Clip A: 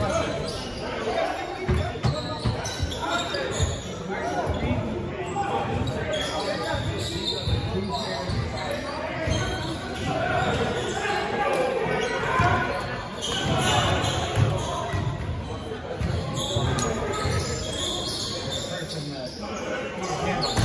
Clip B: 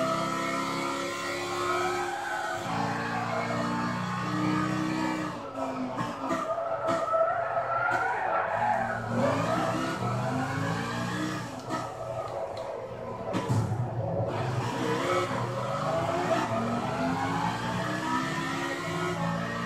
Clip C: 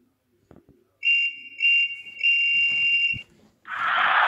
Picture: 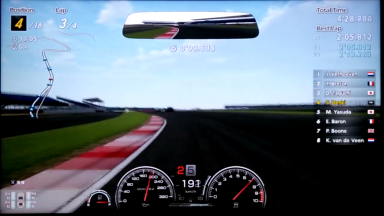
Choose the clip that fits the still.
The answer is B